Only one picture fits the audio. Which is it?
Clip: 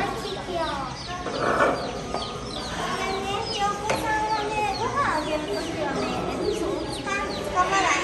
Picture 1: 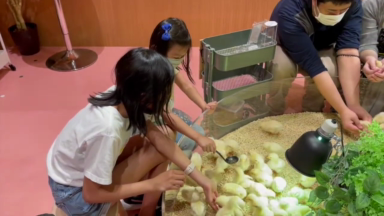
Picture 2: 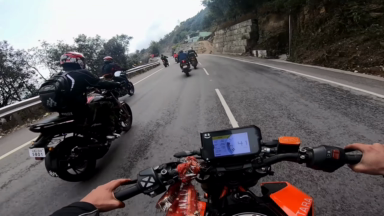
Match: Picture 1